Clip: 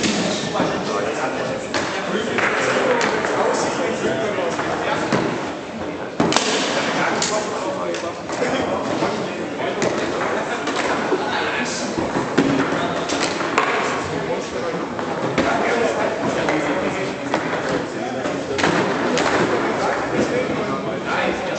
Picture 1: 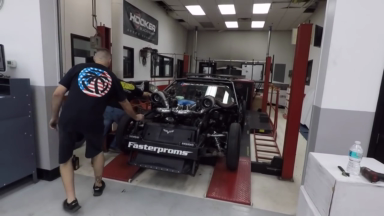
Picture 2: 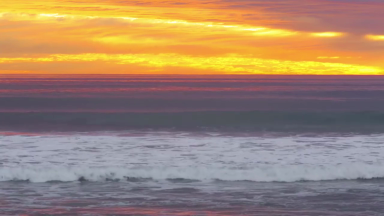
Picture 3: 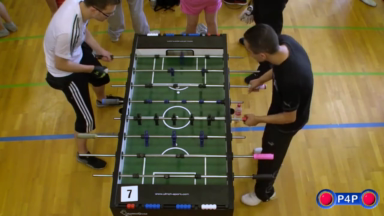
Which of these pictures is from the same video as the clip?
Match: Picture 3